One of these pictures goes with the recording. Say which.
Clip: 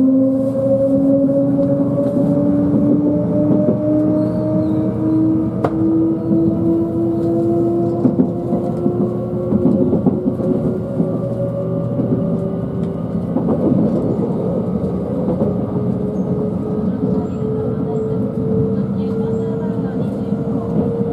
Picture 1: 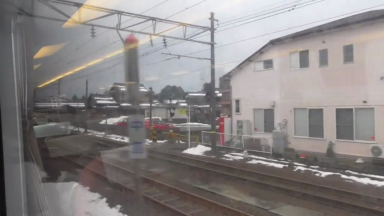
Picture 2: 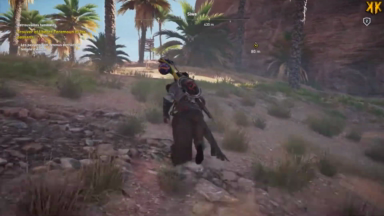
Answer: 1